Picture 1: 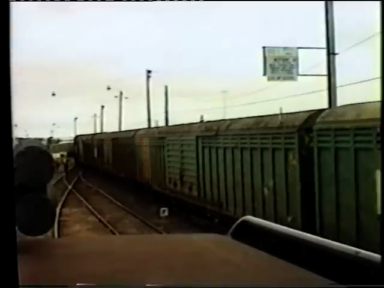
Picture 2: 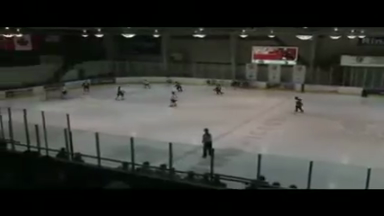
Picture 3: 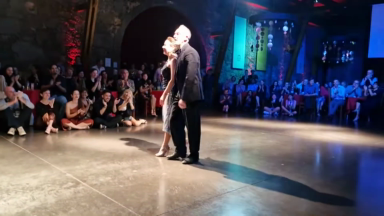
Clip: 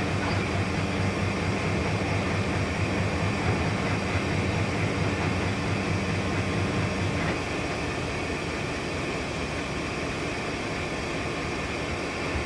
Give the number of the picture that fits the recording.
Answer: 1